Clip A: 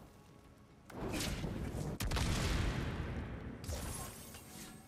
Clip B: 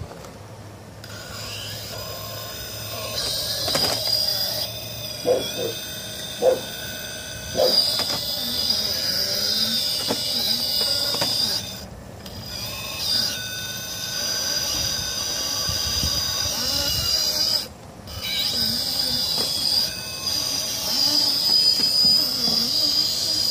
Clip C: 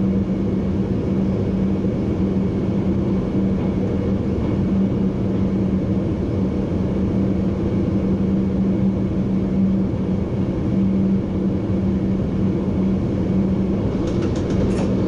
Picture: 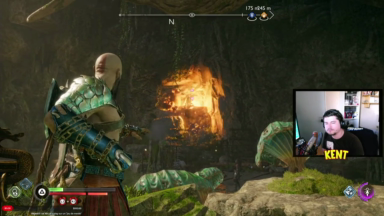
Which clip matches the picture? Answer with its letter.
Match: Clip A